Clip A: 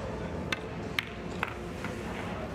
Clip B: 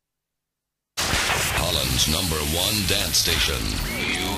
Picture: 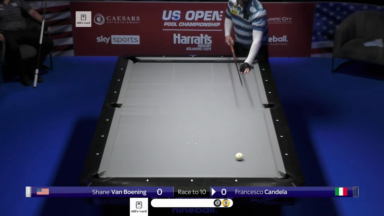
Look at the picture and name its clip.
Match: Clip A